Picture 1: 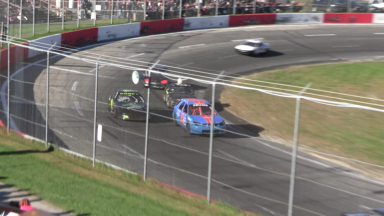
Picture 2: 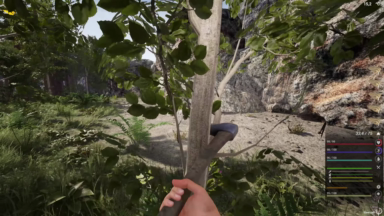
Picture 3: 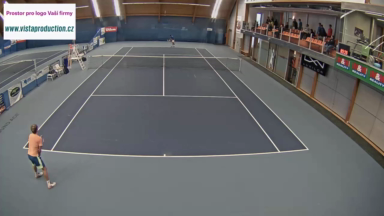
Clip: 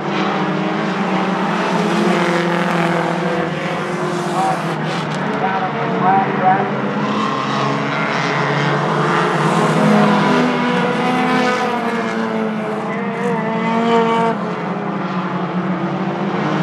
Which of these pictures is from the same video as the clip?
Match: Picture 1